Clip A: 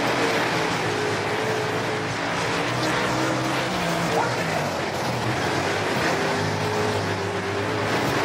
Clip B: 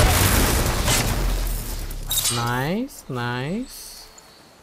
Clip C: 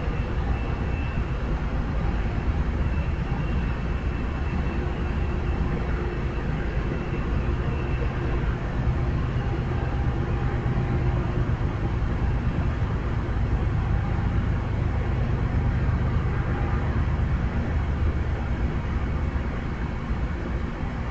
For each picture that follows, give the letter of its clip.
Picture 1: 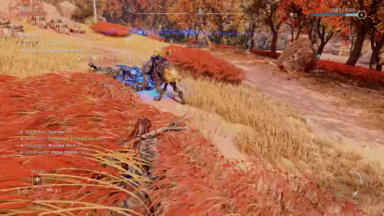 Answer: B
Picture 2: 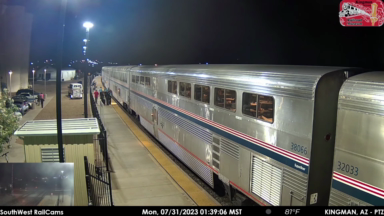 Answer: C